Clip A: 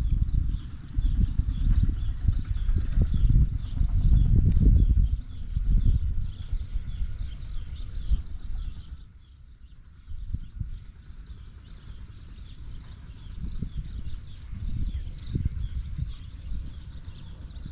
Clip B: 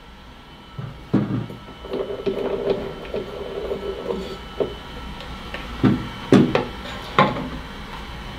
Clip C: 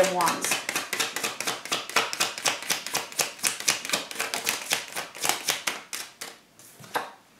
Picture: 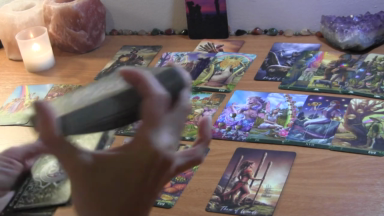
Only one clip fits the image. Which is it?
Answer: C